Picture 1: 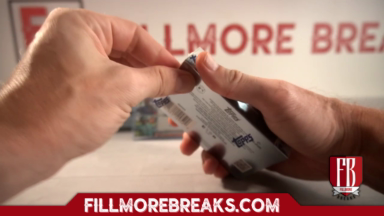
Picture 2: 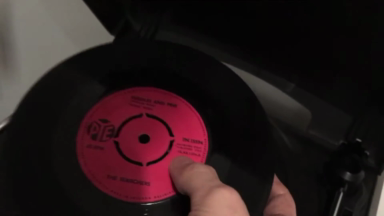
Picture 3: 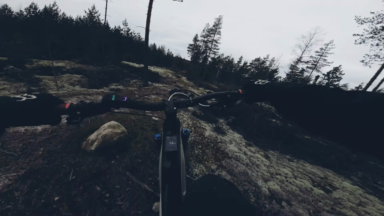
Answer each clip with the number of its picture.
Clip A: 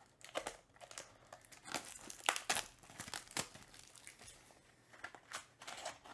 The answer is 1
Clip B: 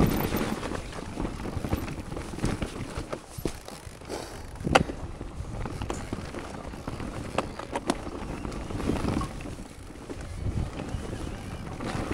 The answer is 3